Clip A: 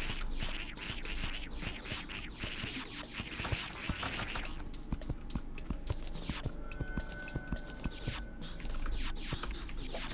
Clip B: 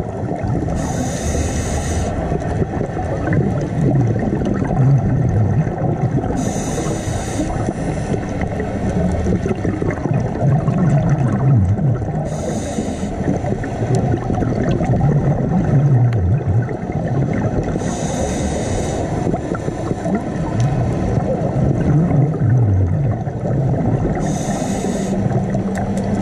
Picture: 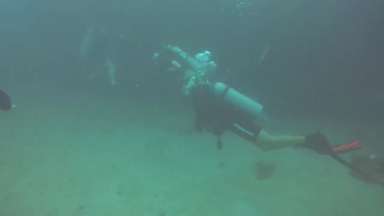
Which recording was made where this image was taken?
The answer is B